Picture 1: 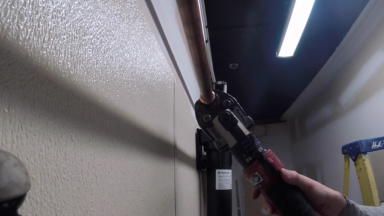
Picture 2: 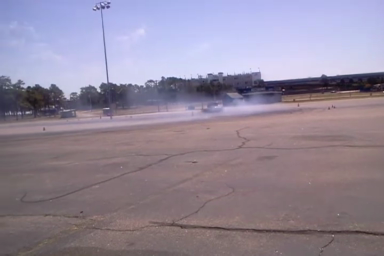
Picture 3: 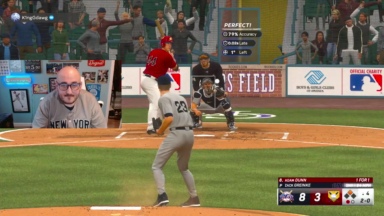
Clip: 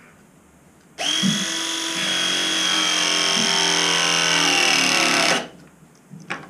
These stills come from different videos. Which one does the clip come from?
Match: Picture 1